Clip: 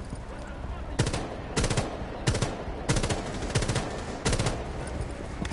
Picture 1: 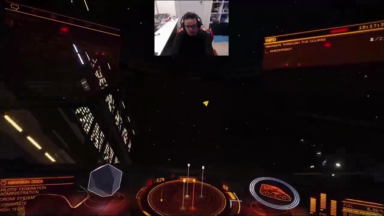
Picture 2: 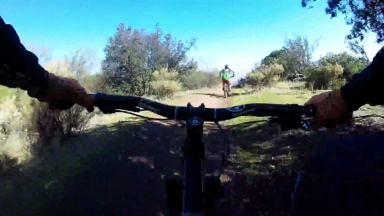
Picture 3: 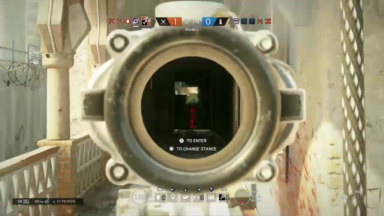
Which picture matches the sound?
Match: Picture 3